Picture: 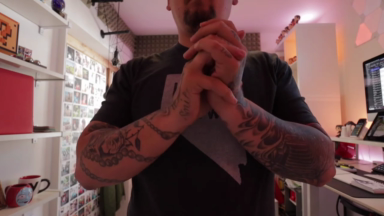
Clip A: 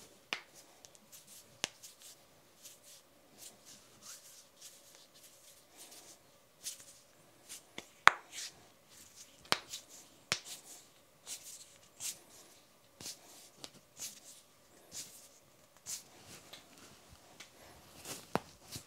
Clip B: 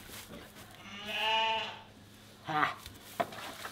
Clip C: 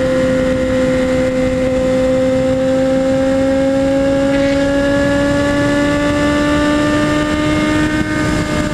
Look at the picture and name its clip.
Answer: A